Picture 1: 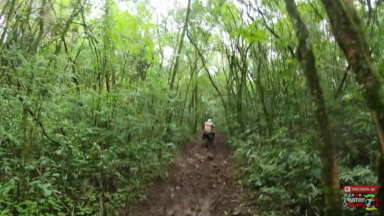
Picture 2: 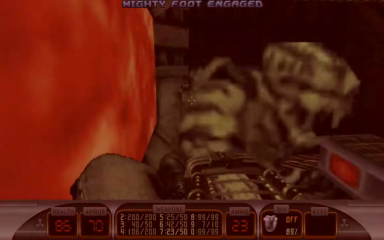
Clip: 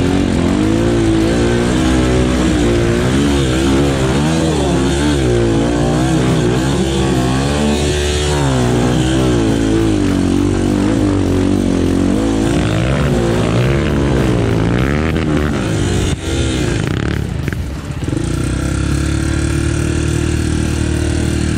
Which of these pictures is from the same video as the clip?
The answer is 1